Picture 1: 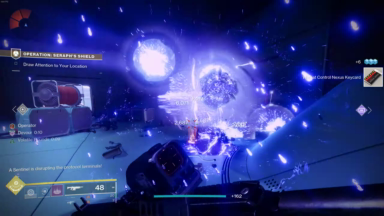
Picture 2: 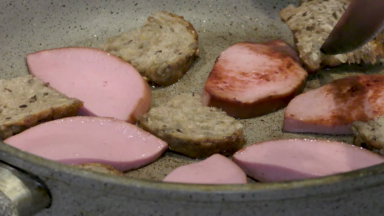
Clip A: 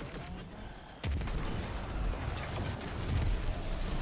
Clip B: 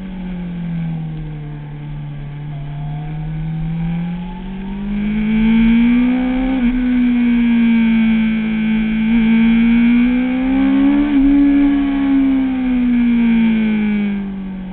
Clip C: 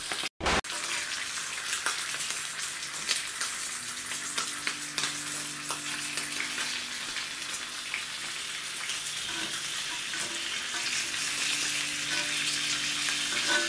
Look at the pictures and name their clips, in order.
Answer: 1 A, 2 C